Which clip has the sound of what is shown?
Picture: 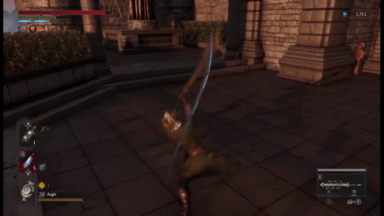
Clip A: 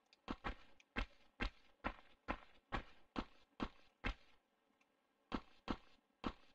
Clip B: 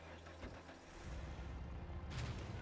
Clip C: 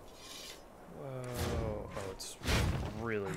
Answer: C